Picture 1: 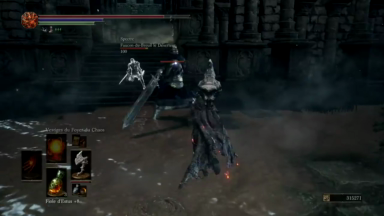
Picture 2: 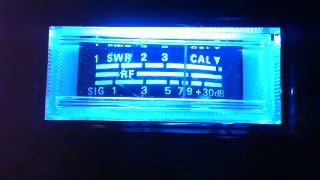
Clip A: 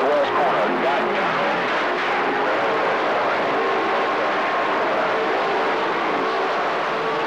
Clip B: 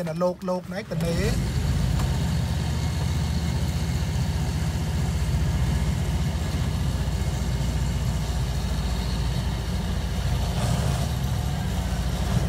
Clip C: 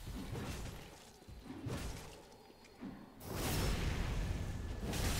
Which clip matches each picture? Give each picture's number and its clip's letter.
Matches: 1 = C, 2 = A